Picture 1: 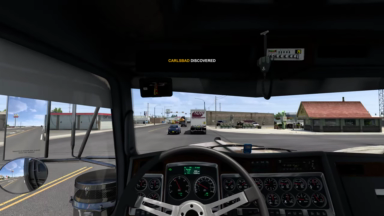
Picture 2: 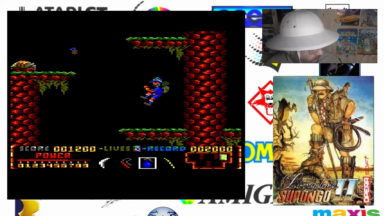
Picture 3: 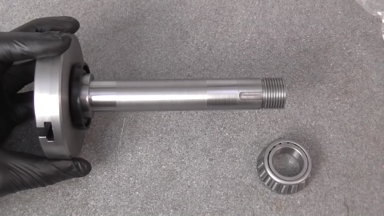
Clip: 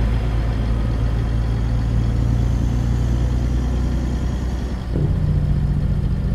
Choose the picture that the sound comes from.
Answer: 1